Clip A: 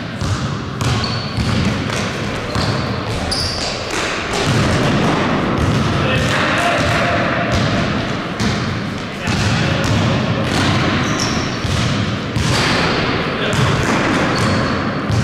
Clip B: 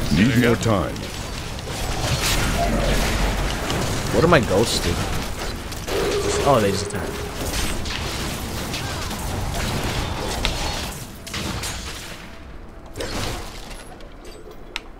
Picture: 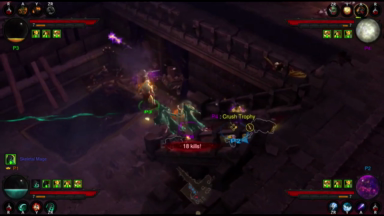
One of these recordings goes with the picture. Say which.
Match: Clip B